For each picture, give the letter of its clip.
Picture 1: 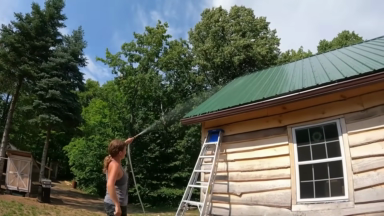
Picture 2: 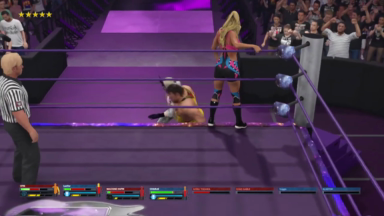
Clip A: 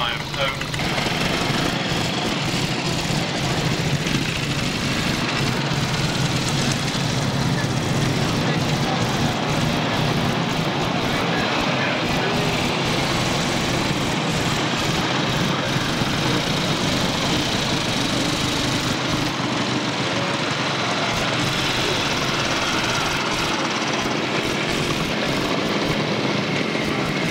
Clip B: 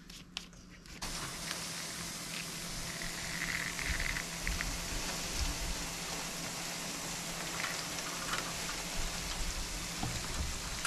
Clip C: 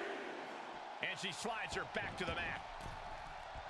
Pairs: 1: B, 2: C